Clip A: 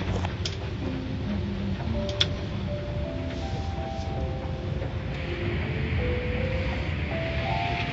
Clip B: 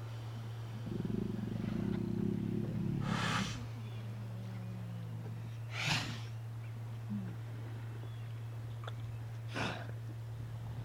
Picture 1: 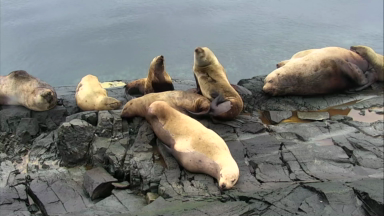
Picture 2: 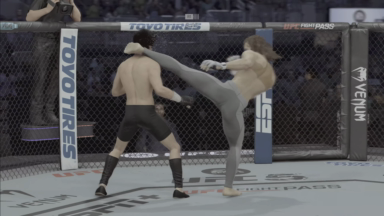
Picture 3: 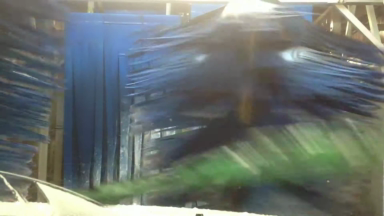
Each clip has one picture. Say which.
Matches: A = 3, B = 1